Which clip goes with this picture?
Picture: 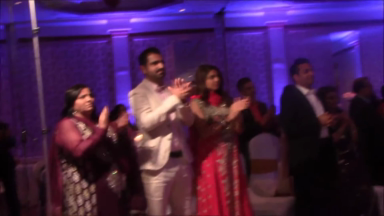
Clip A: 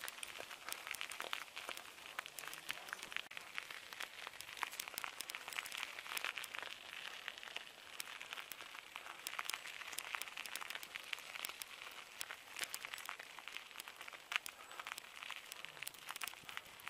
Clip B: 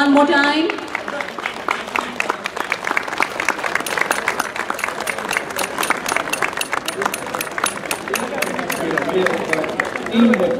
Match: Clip B